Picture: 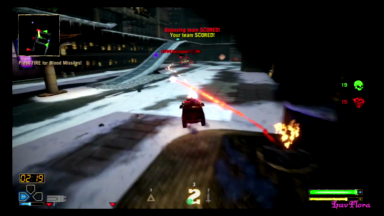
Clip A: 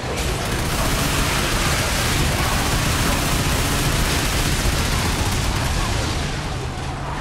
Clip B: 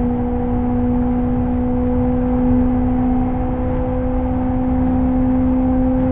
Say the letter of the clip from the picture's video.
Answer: A